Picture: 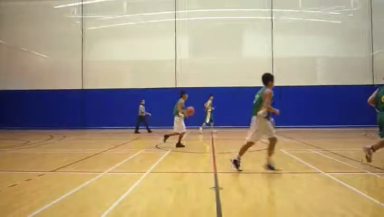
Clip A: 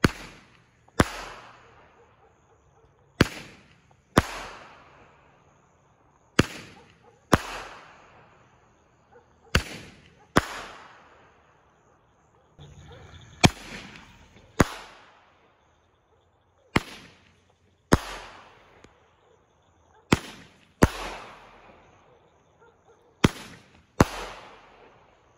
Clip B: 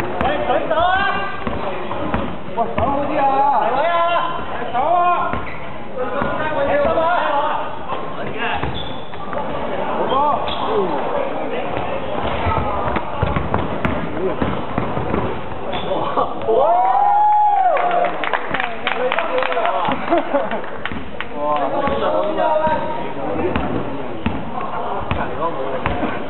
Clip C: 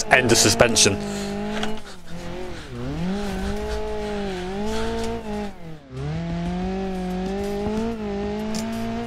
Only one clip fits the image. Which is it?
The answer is B